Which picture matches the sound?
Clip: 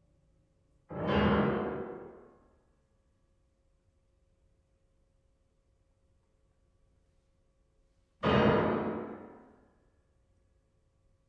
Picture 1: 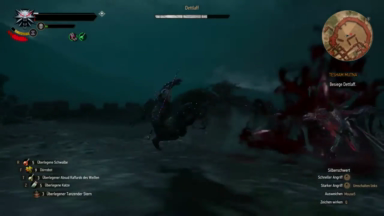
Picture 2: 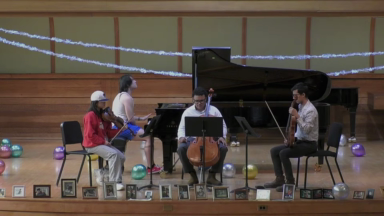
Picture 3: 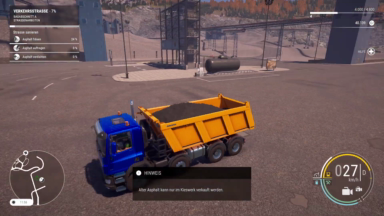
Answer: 2